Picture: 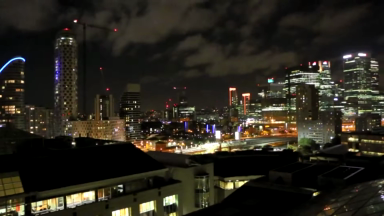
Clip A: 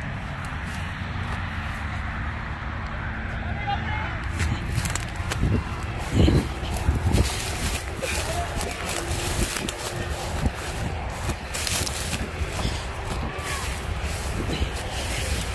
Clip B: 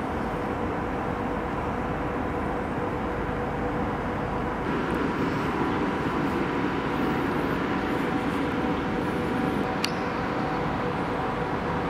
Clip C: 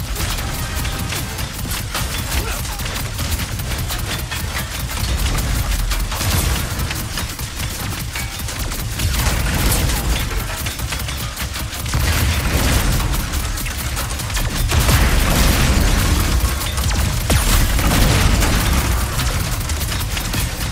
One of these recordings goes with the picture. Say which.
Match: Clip B